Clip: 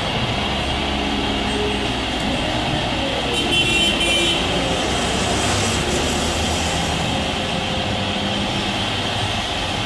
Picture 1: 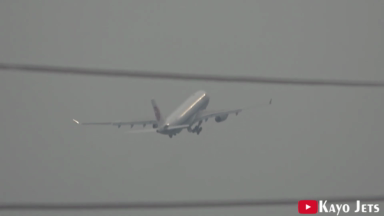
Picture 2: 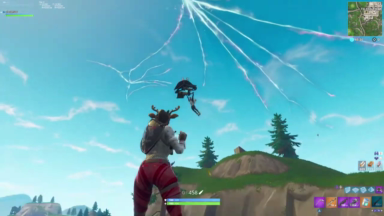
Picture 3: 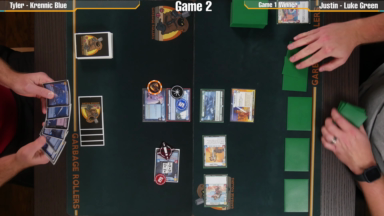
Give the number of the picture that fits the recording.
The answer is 1